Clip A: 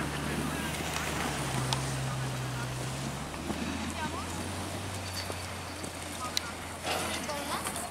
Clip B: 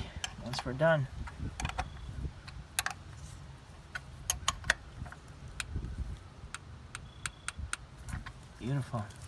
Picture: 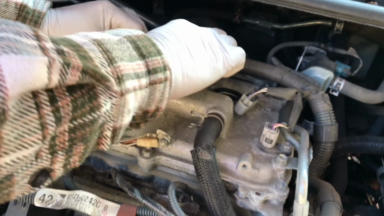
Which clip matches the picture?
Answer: B